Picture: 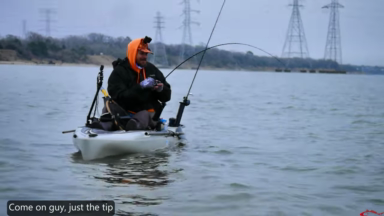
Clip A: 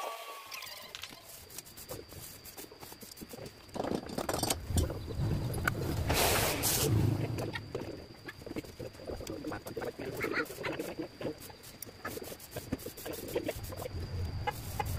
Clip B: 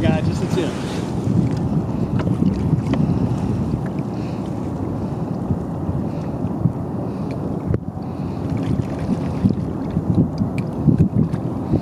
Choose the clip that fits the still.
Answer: B